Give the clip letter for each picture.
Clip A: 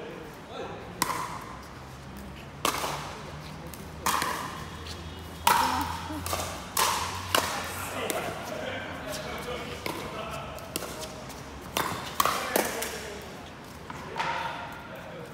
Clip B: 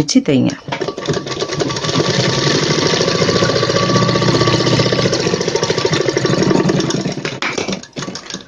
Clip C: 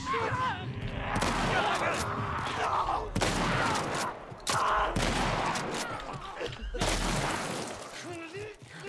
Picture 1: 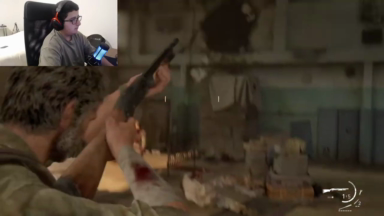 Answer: C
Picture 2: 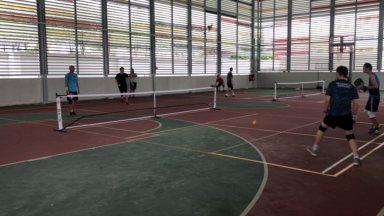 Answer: A